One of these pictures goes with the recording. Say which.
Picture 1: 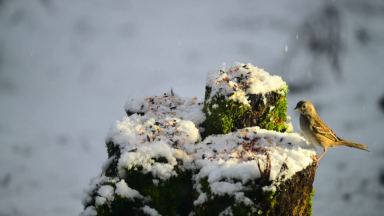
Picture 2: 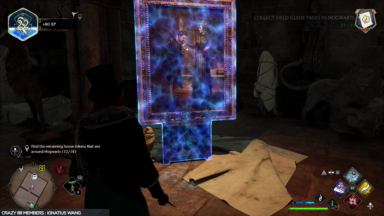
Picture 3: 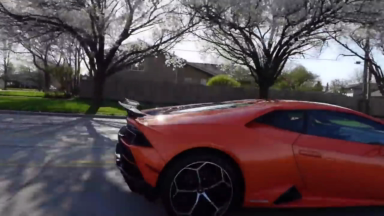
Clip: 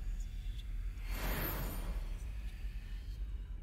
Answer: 2